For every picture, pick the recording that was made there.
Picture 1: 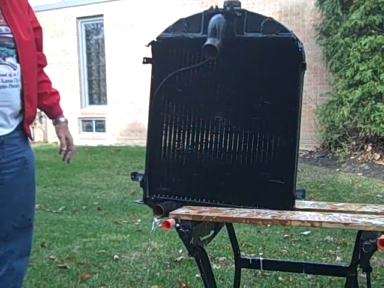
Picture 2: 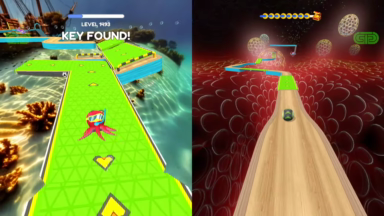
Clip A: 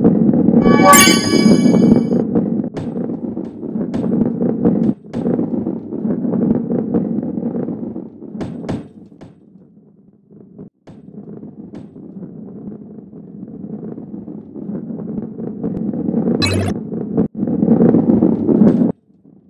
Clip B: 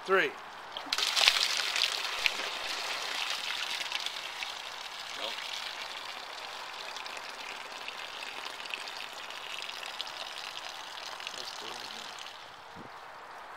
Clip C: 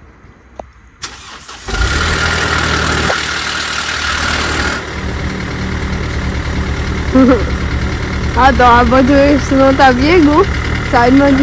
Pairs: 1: B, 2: A